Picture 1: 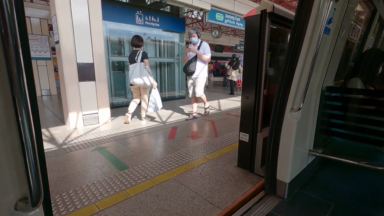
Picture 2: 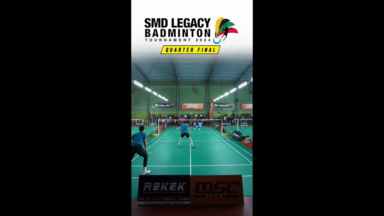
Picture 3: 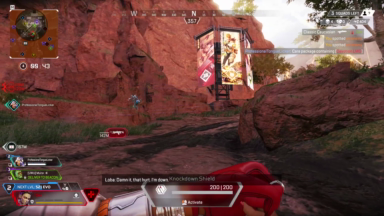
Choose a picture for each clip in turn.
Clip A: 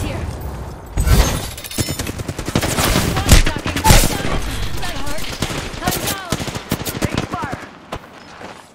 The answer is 3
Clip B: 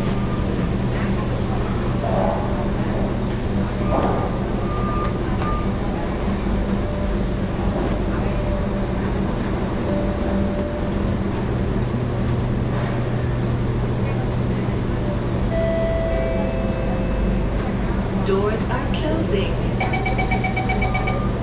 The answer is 1